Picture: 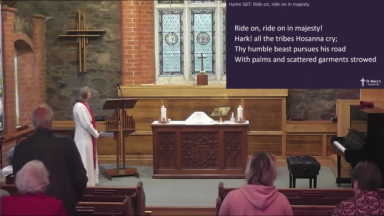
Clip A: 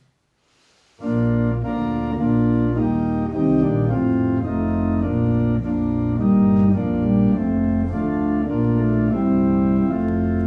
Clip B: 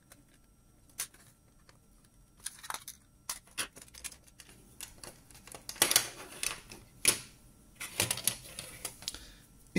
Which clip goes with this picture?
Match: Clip A